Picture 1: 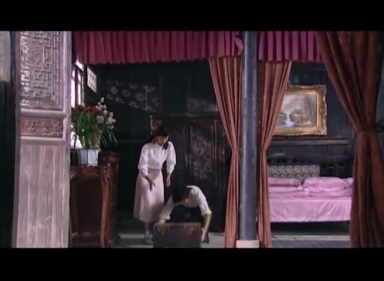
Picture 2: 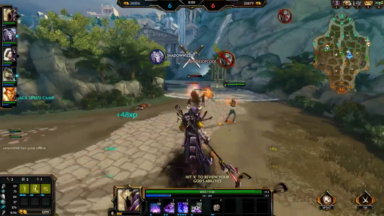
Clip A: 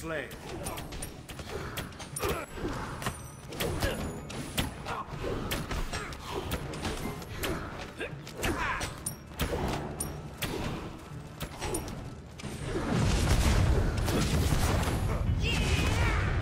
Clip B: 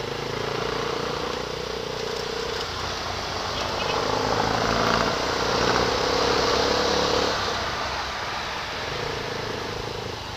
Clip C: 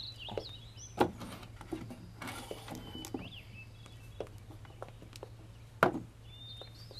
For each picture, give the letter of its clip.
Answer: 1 C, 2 A